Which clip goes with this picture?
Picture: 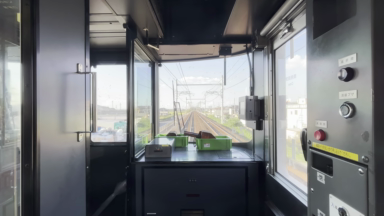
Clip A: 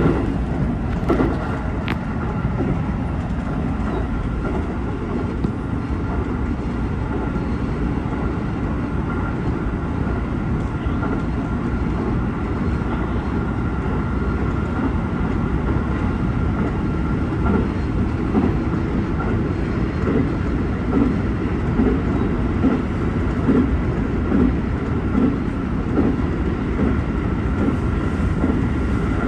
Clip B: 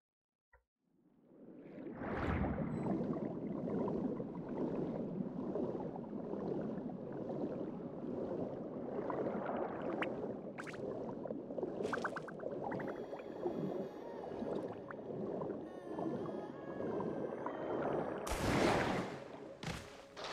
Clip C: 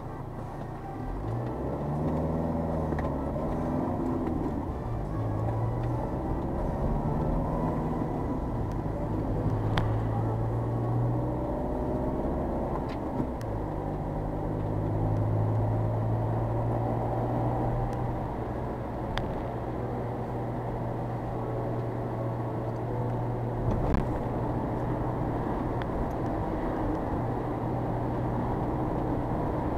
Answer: A